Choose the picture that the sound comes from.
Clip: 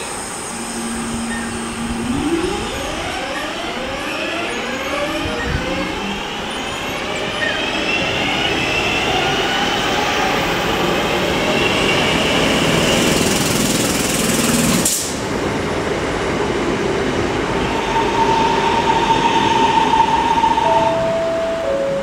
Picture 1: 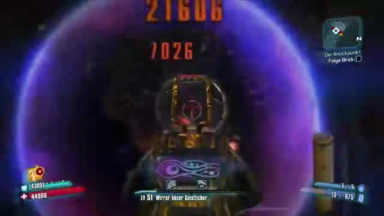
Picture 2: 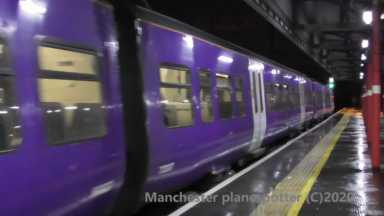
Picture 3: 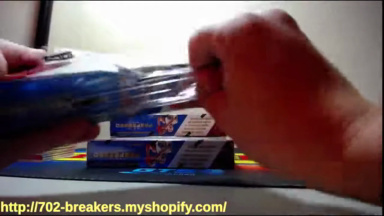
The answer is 2